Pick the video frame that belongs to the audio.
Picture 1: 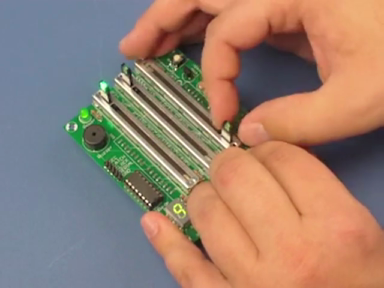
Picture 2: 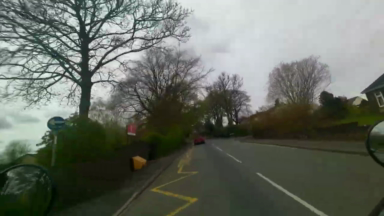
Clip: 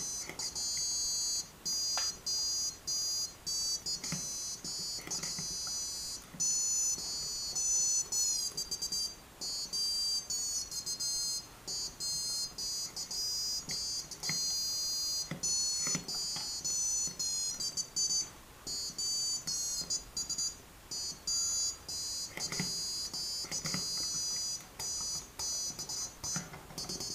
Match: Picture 1